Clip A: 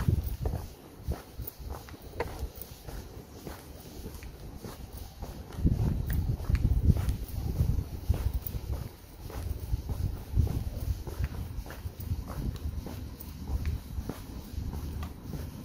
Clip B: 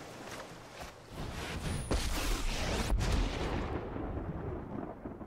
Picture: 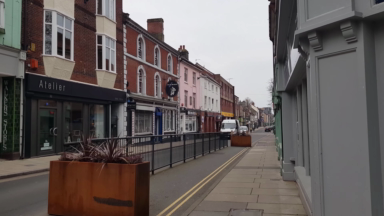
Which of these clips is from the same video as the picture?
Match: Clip A